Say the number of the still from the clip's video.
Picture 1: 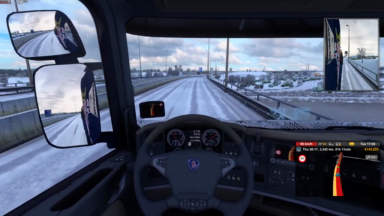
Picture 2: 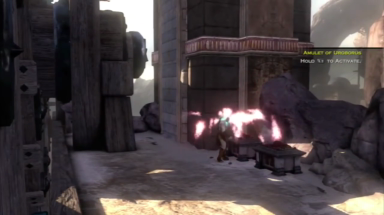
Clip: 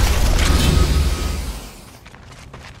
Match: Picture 2